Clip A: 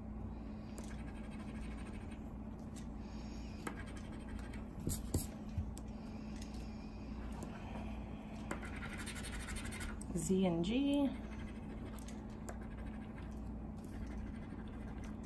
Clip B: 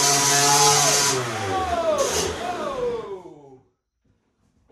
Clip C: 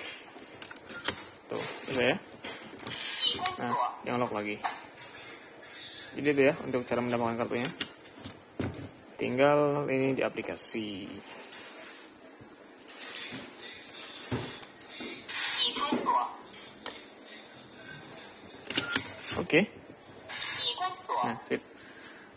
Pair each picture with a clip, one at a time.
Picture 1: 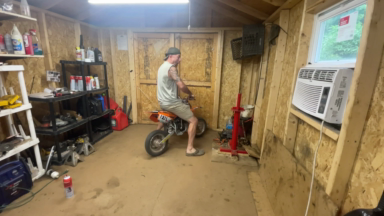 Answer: B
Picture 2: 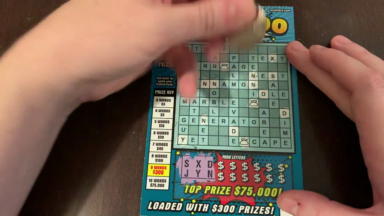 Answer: A